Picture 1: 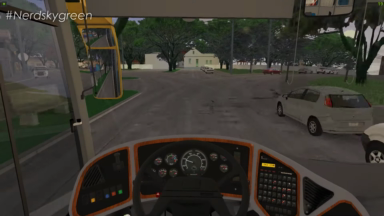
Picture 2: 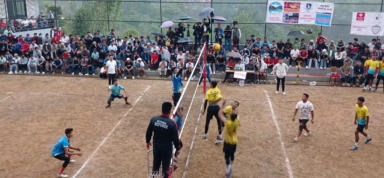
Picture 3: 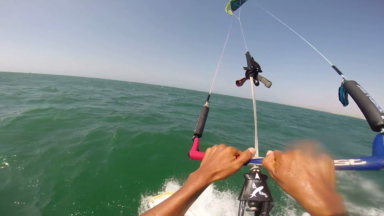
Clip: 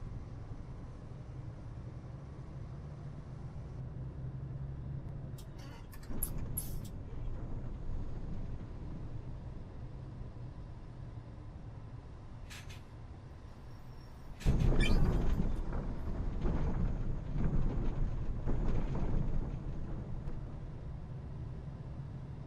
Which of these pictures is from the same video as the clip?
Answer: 1